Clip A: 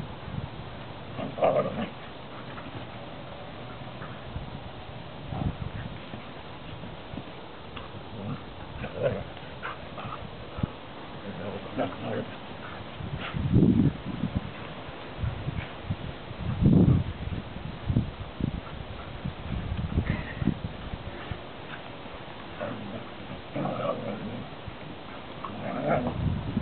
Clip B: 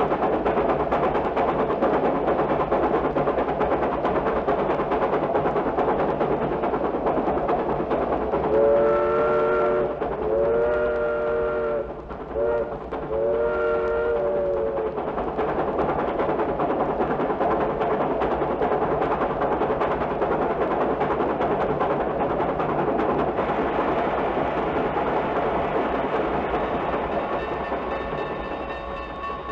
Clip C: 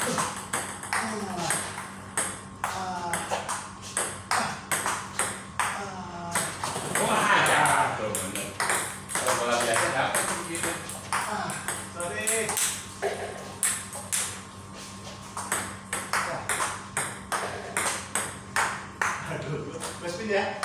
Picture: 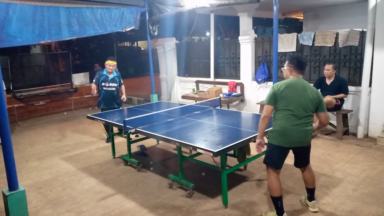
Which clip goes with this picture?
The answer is C